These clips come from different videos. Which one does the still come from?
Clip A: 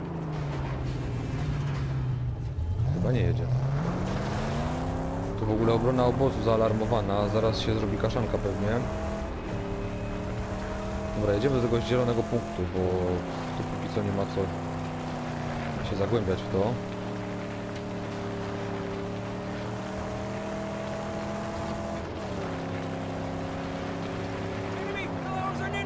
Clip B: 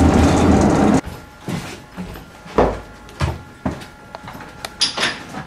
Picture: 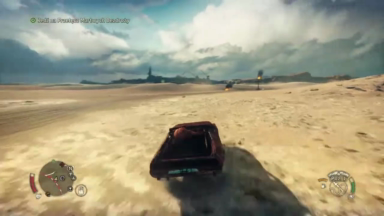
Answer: A